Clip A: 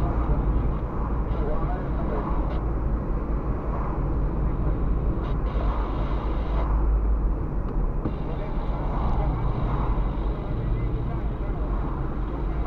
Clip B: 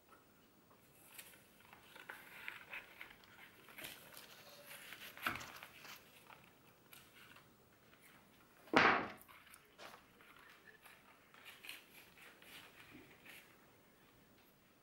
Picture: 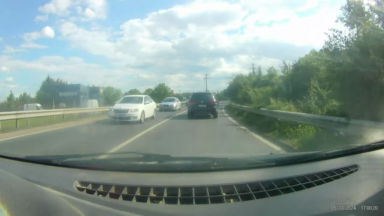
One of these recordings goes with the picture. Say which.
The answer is A